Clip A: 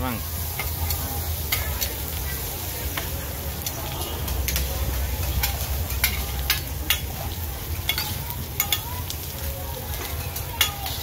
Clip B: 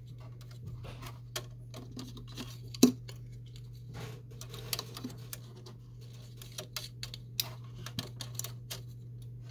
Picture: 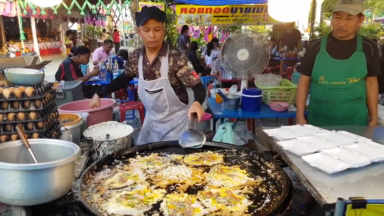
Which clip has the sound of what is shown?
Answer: A